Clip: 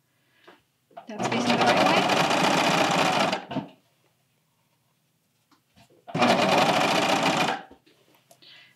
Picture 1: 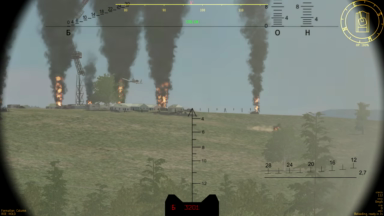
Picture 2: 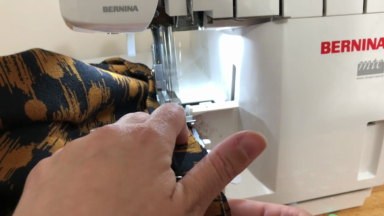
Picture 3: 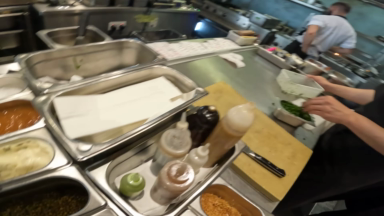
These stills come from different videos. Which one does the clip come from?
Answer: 2